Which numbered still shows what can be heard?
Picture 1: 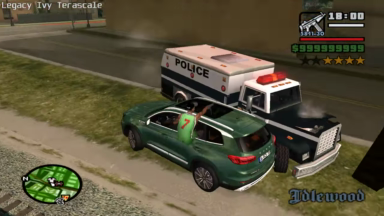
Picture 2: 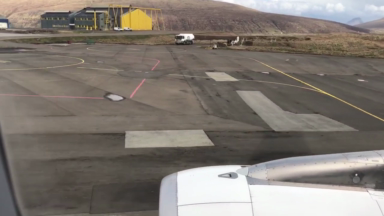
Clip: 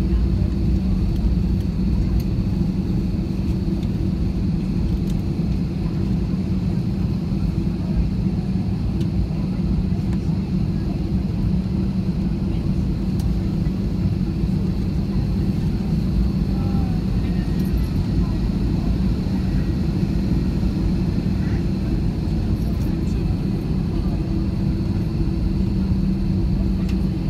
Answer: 2